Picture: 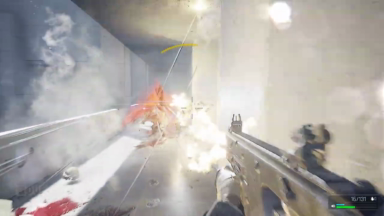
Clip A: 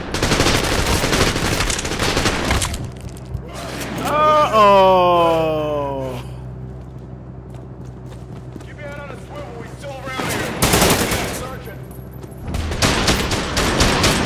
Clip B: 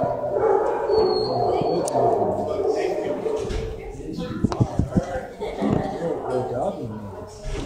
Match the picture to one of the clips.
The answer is A